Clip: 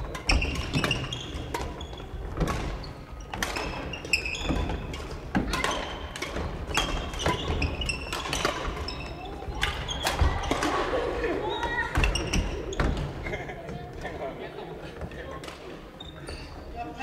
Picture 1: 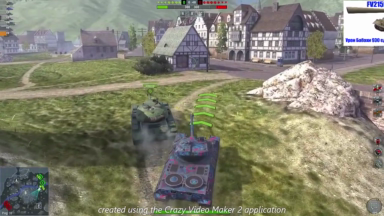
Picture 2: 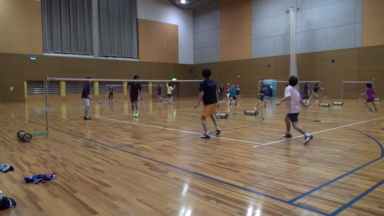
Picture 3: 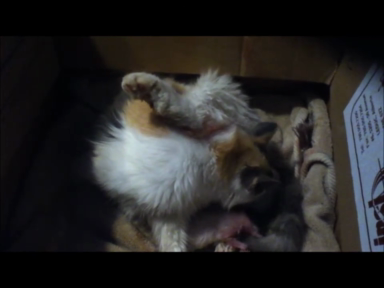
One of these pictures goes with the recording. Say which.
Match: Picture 2